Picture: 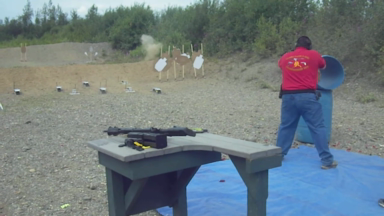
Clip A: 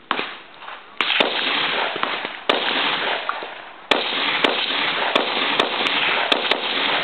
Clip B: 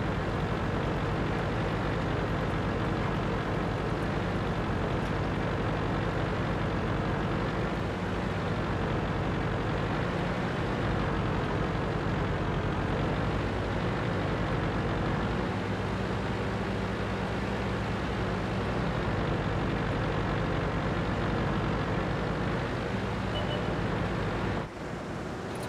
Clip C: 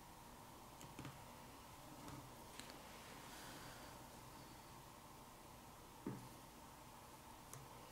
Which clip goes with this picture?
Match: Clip A